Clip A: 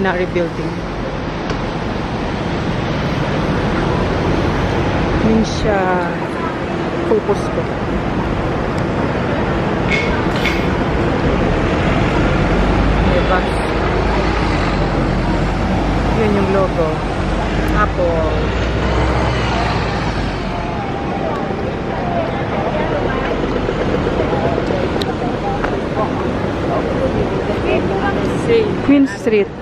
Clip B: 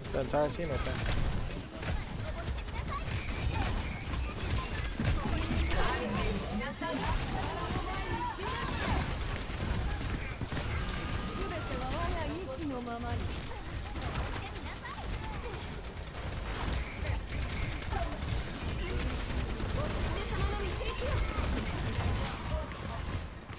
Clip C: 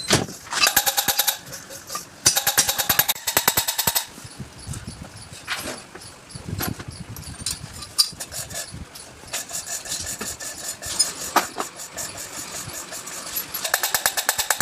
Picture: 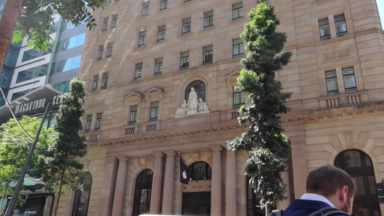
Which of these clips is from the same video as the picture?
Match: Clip A